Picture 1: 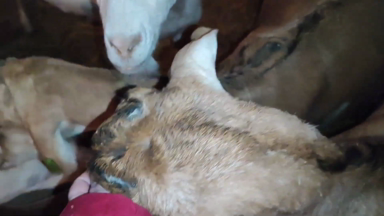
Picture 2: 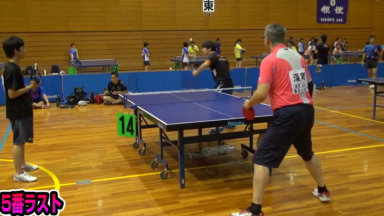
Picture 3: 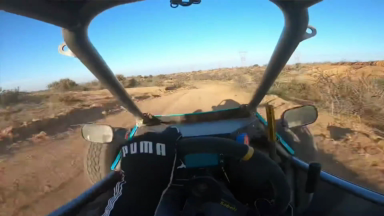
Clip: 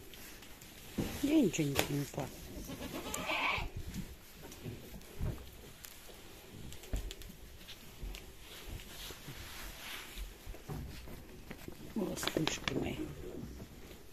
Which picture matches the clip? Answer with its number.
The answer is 1